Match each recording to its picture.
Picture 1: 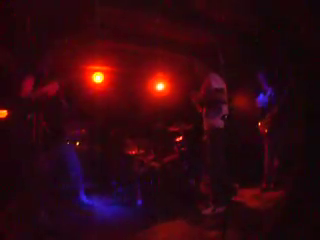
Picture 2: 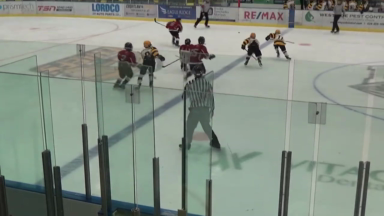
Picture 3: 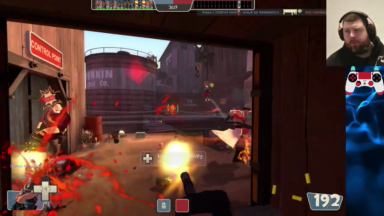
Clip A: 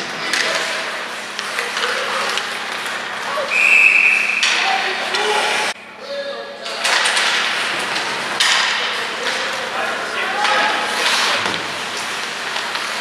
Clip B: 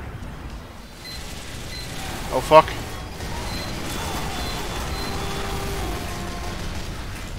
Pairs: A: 2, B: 3